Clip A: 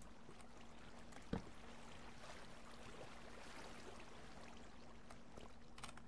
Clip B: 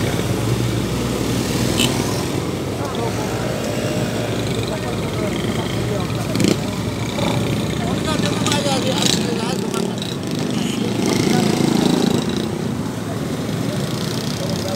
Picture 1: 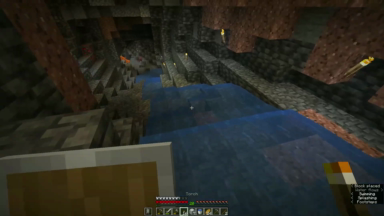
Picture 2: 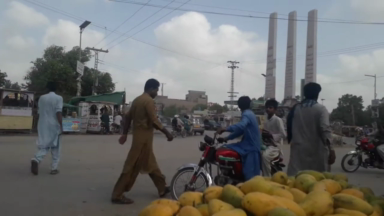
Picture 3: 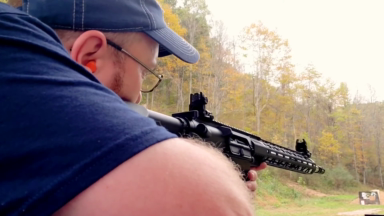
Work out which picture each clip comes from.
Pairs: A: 1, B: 2